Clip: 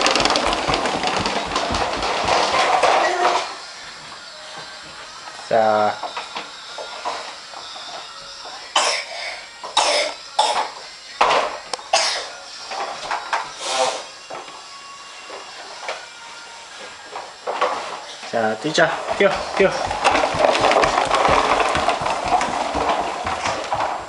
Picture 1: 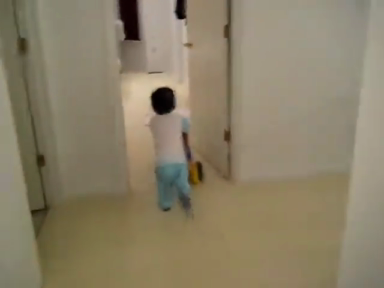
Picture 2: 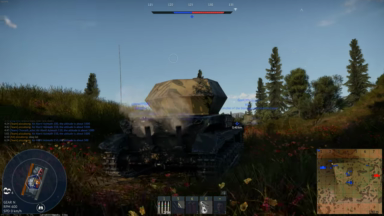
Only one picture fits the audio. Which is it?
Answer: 1